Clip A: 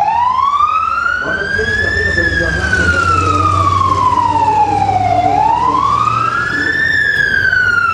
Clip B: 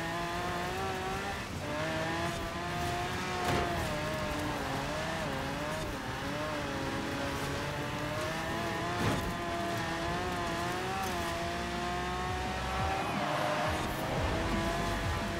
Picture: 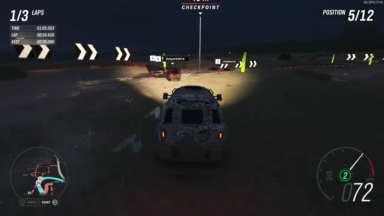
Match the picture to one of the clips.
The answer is B